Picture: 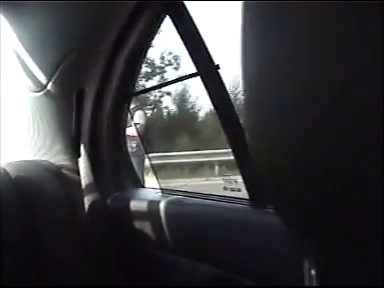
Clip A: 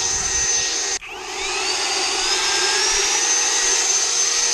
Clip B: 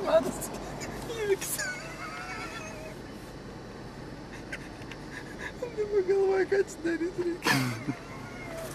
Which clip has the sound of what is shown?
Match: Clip B